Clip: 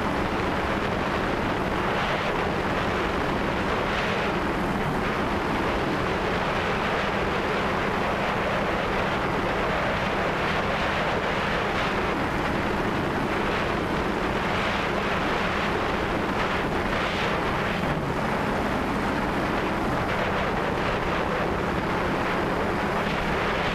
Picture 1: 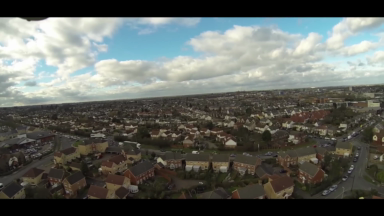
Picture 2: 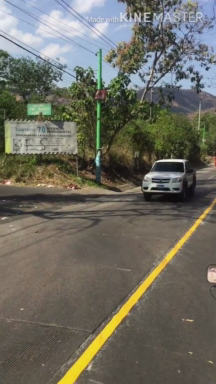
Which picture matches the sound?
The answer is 1